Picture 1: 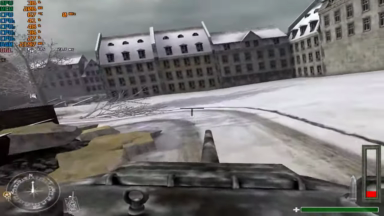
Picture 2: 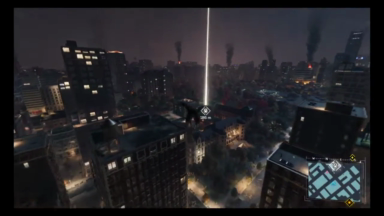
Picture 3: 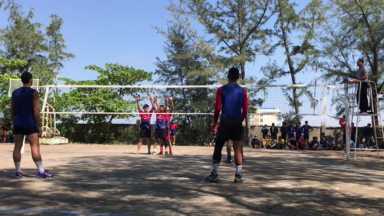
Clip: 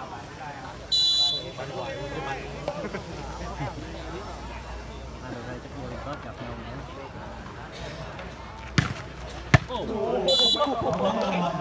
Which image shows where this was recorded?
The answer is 3